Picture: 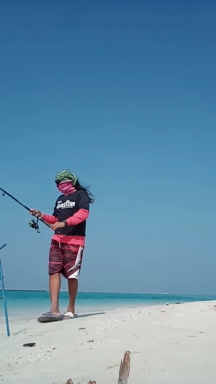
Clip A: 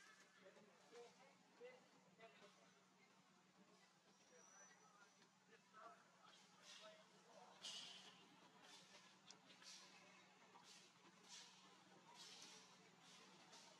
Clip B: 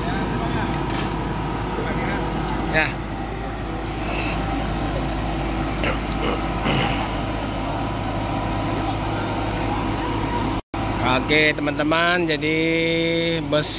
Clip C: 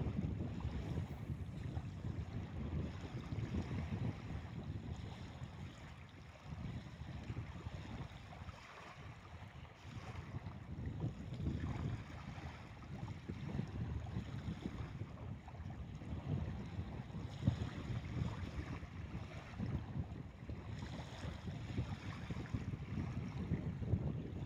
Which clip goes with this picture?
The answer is C